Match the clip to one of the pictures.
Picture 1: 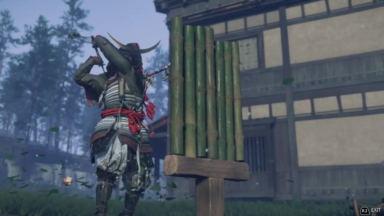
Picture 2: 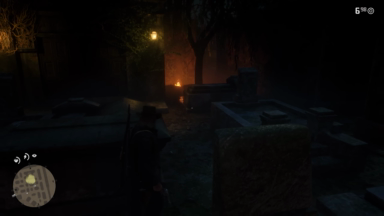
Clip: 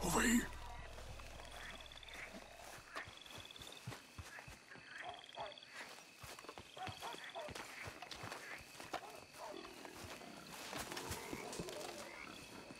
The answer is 2